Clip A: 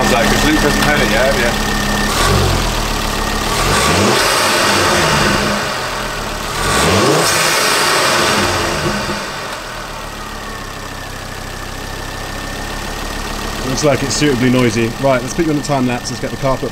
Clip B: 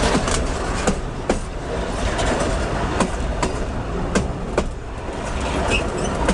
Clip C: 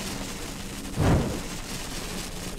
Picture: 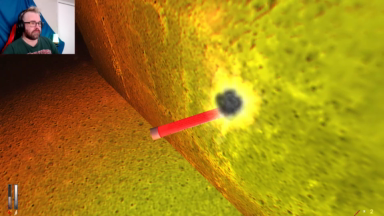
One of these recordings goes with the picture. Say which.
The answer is C